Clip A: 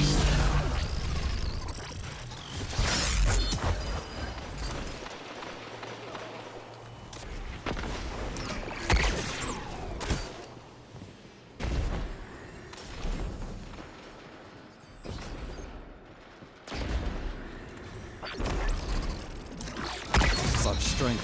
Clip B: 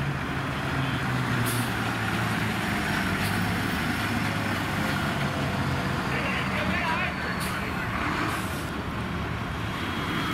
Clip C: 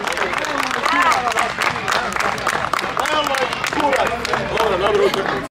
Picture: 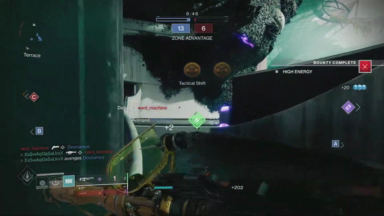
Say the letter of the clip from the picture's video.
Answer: A